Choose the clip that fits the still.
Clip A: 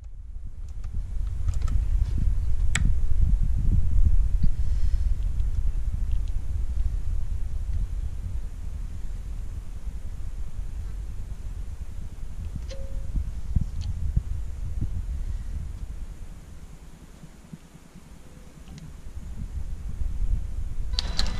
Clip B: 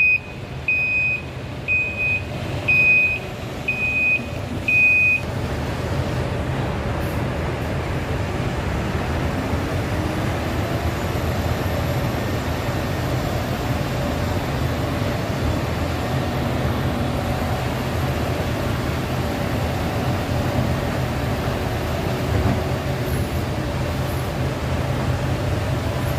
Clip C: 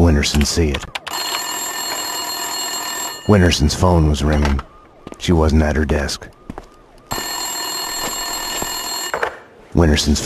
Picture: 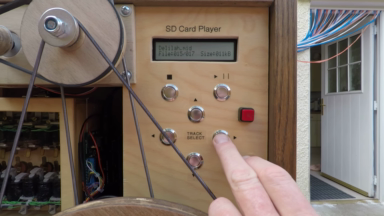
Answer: A